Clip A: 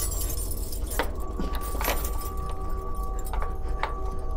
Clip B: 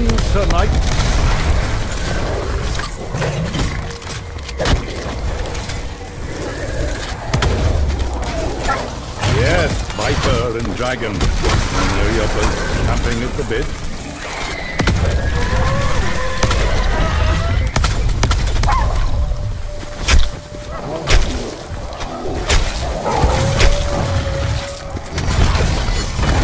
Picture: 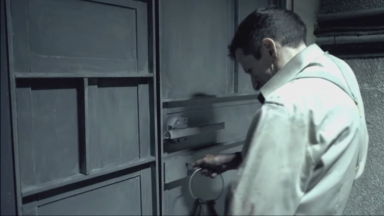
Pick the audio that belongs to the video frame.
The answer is A